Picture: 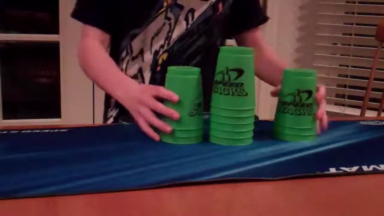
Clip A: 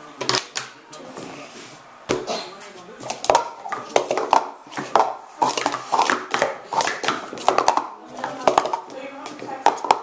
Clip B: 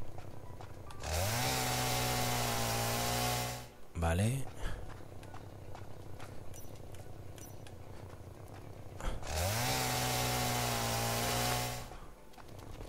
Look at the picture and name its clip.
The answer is A